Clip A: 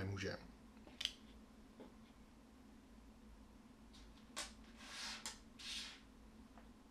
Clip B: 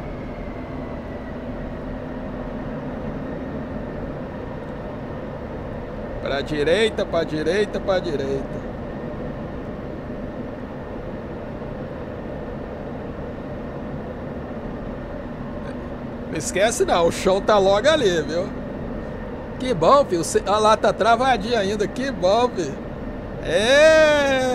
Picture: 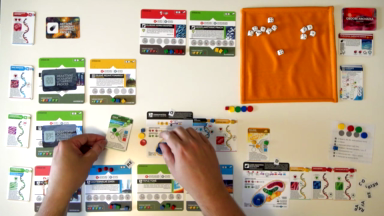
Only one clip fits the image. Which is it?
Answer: A